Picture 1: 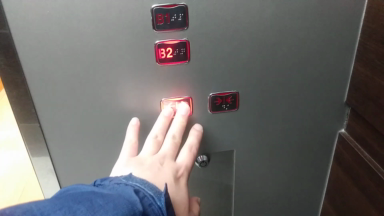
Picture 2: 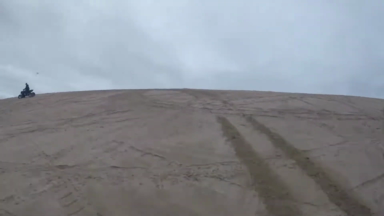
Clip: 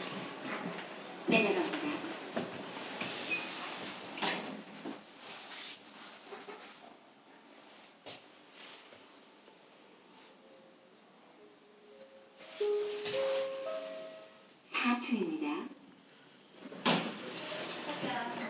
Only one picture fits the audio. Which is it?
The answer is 1